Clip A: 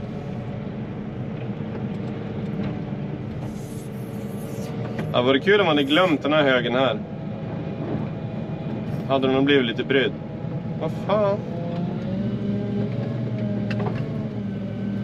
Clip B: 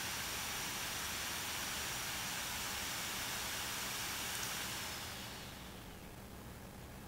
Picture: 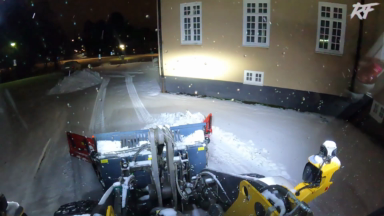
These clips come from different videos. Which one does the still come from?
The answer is A